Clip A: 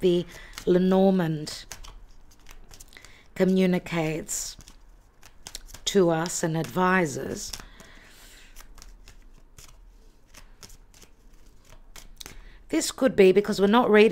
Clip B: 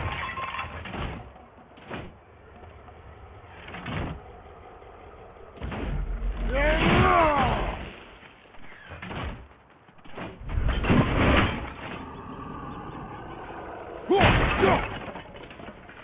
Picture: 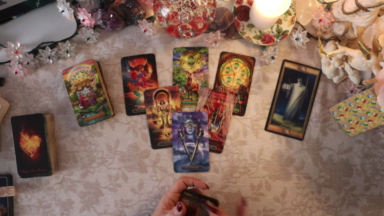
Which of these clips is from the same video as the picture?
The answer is A